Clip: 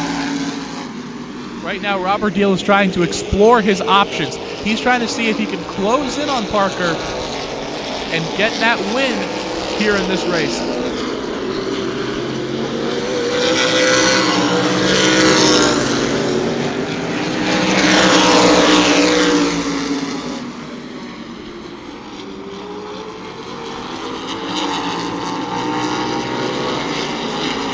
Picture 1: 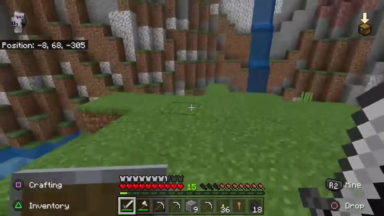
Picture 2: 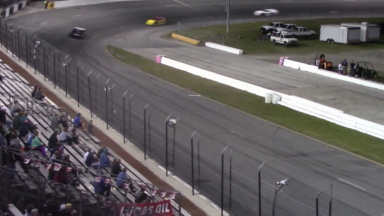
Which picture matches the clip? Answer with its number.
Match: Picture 2